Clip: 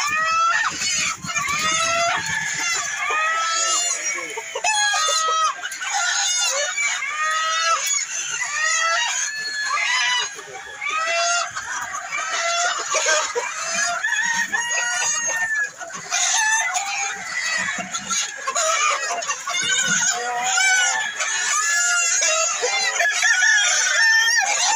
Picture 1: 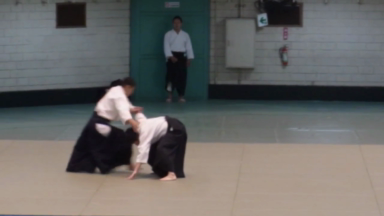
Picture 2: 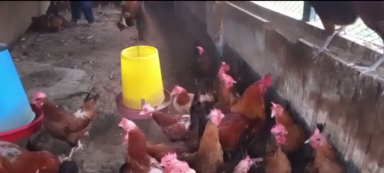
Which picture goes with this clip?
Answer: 2